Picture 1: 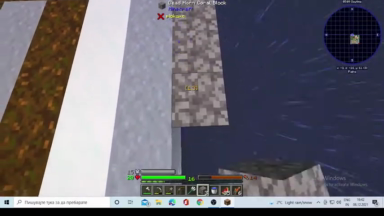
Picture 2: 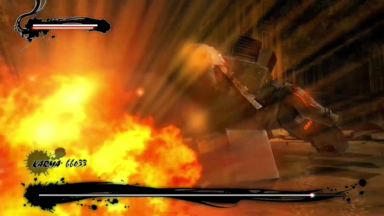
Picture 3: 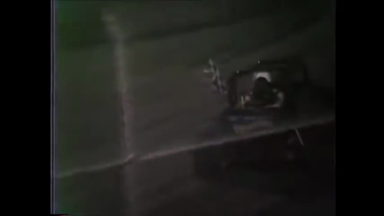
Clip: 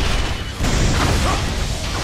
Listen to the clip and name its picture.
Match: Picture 2